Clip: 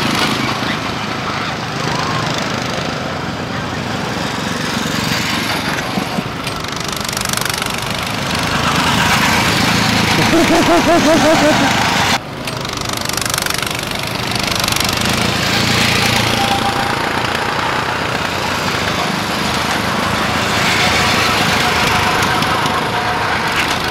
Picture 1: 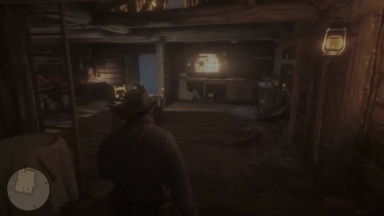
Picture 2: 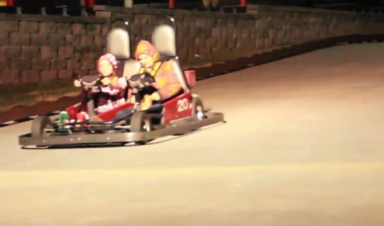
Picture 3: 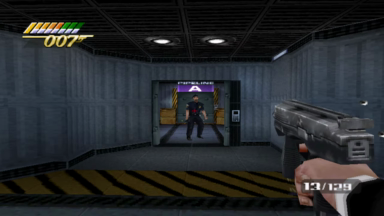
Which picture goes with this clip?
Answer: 2